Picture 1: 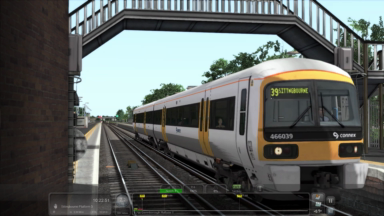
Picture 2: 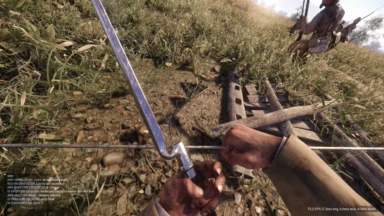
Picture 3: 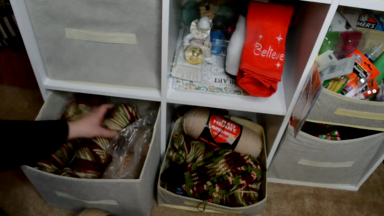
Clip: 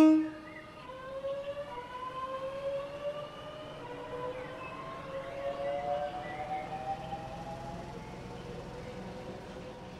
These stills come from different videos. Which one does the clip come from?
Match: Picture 1